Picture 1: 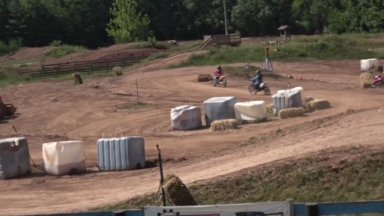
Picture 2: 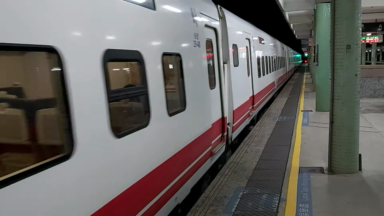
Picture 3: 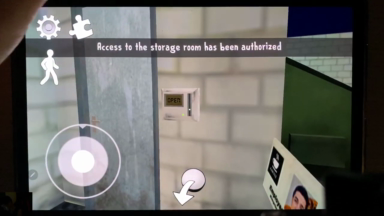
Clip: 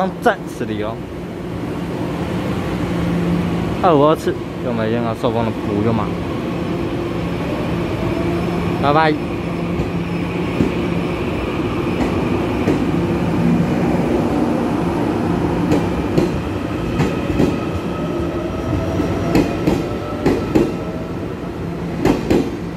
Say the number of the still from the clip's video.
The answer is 2